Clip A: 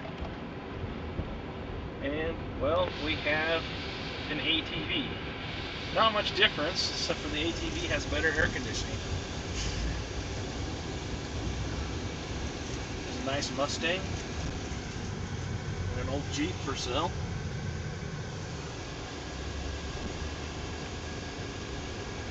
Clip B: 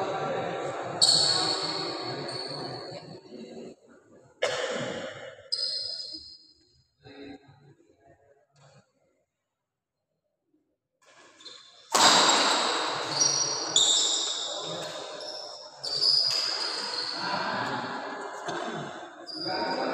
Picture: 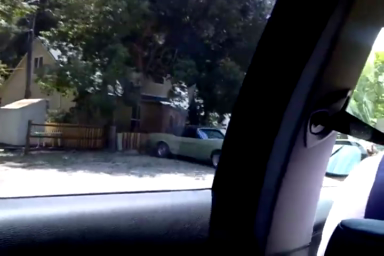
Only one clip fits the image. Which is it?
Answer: A